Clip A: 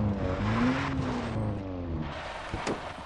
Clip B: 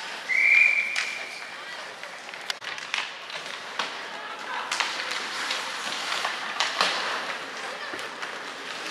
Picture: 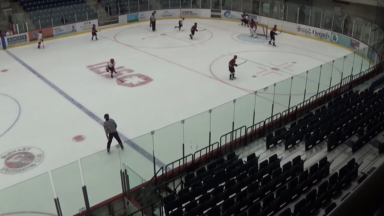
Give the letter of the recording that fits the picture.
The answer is B